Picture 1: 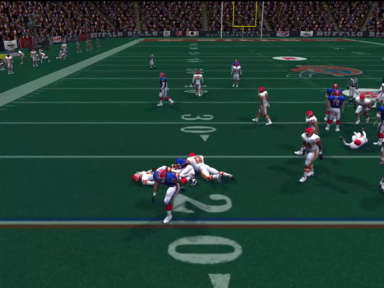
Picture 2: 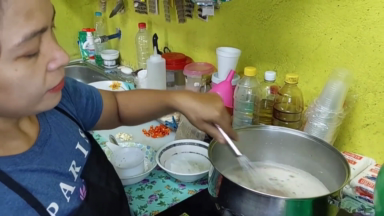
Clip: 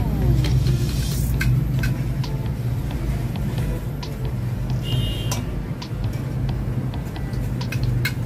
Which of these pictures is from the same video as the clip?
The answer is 2